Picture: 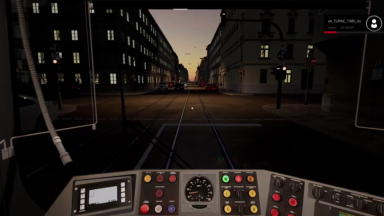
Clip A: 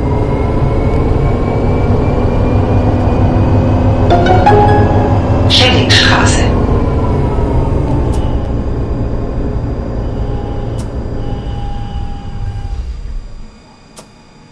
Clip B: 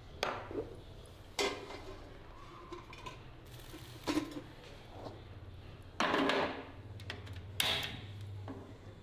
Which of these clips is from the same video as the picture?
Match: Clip A